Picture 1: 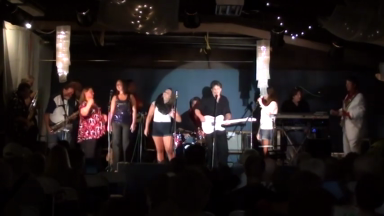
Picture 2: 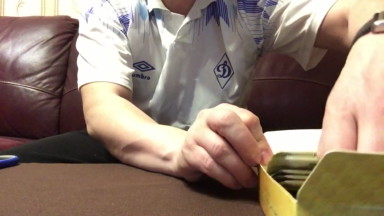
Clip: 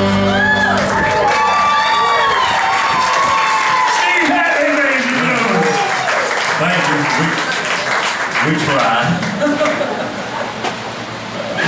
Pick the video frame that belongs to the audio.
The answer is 1